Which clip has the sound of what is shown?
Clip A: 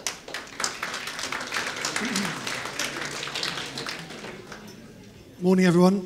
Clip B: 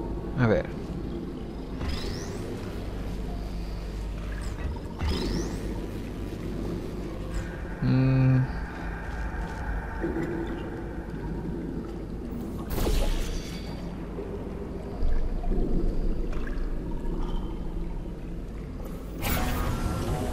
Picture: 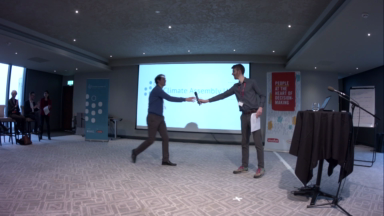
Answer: A